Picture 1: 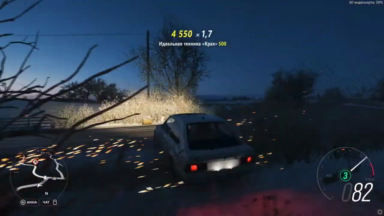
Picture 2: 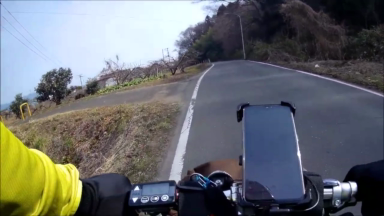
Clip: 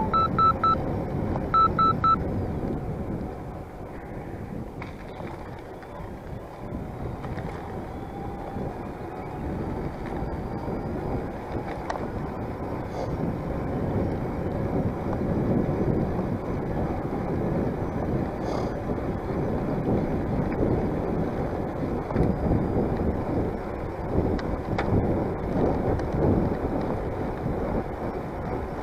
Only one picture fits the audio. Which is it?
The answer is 2